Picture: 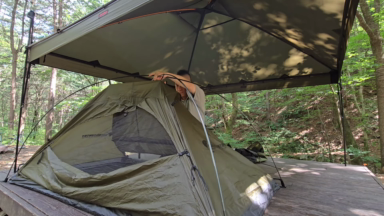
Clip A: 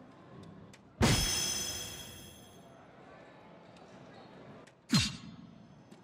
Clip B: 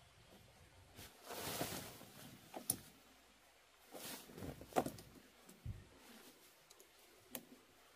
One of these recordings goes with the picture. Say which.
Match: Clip B